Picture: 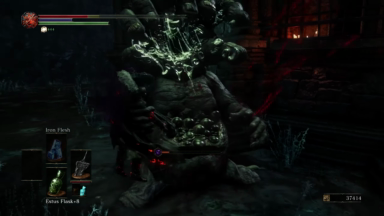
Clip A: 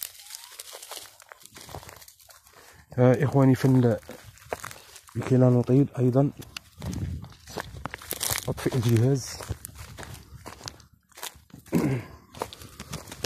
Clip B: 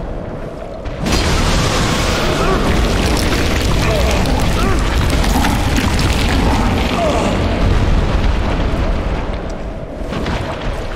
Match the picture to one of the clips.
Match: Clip B